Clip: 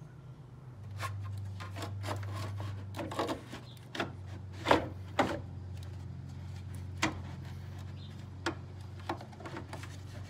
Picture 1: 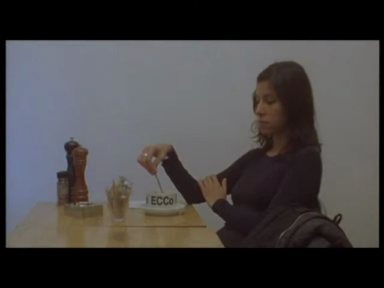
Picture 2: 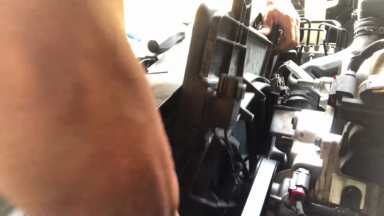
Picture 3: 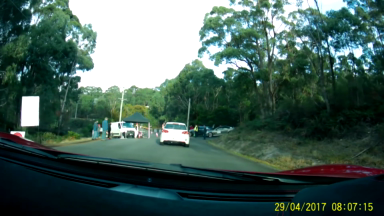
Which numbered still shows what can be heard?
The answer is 2